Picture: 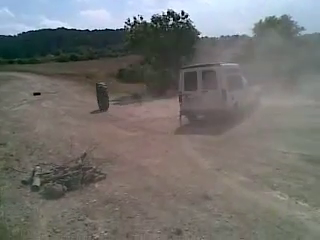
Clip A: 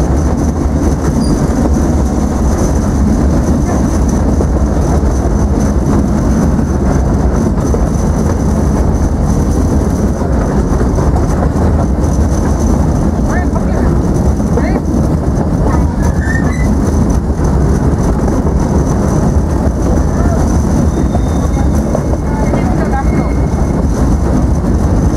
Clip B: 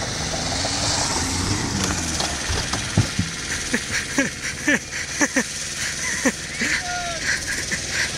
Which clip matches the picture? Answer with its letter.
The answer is B